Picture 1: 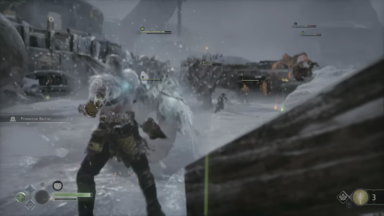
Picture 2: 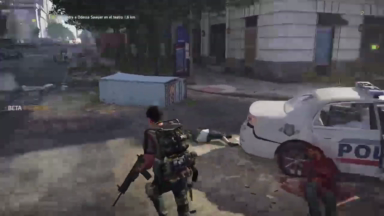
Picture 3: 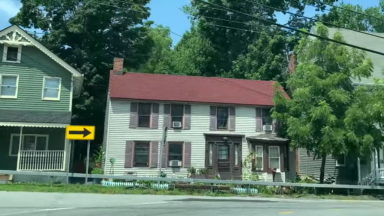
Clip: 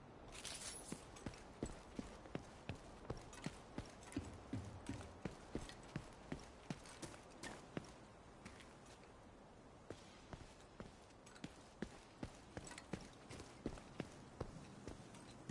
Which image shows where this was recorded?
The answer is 2